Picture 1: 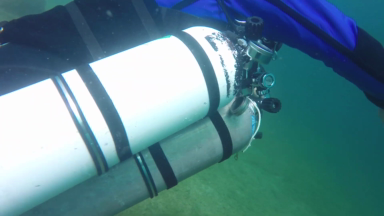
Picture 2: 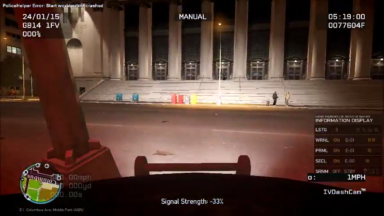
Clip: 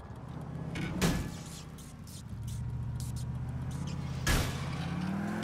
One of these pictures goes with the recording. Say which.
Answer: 2